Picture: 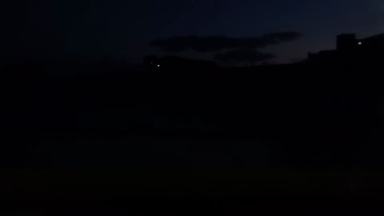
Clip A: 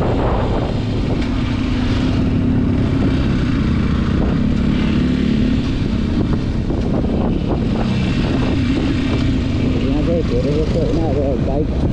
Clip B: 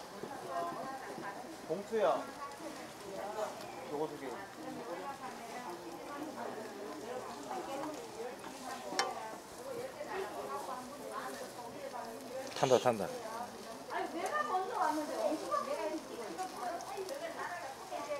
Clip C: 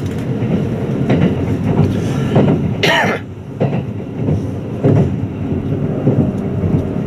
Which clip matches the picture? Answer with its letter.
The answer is C